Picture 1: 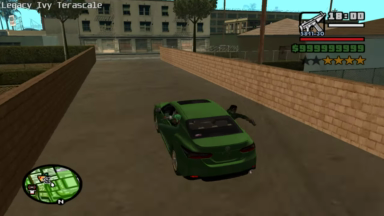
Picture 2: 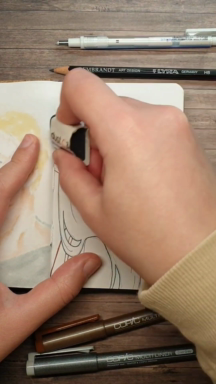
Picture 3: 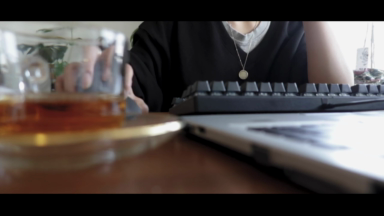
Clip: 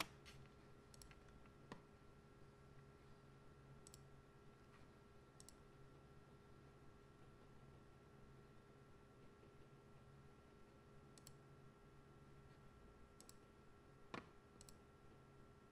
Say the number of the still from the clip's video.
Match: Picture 3